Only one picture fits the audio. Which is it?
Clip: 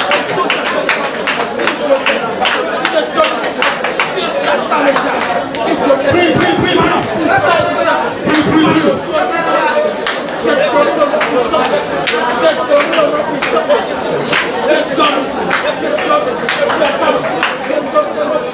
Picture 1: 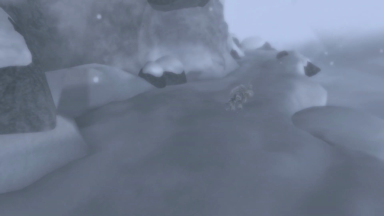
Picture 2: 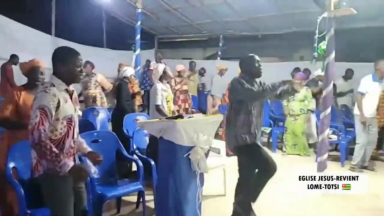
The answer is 2